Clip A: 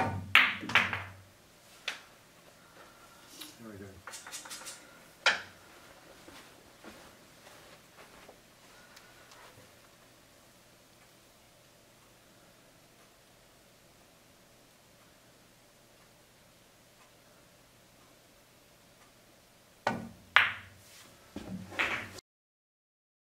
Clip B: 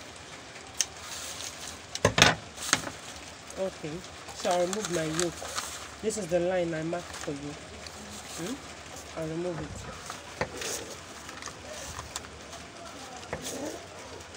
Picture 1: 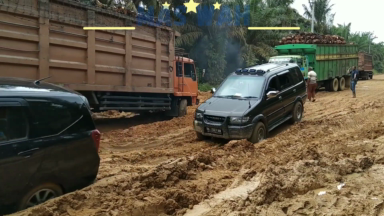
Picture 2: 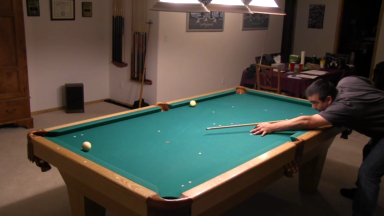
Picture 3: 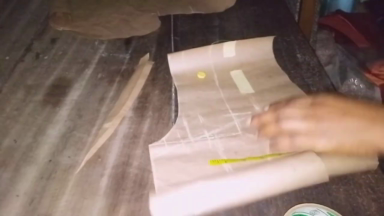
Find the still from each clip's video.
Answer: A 2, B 3